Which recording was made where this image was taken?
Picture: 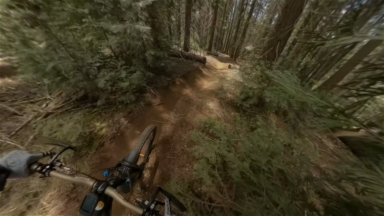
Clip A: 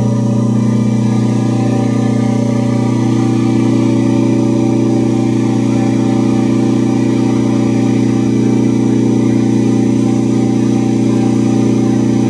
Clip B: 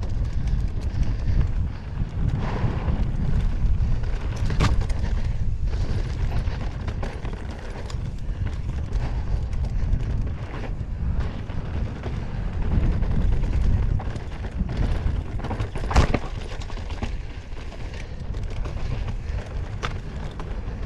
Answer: B